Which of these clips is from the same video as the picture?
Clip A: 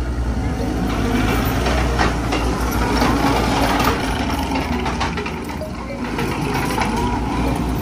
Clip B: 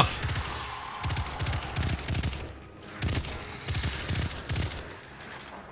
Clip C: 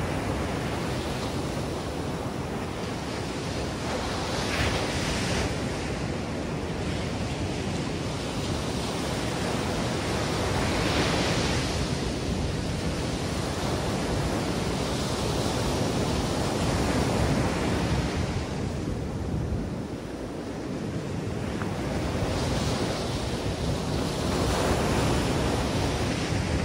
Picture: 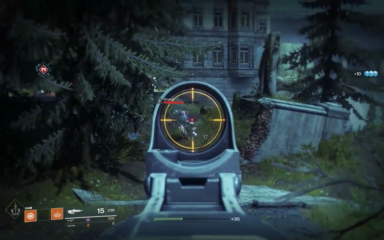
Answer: B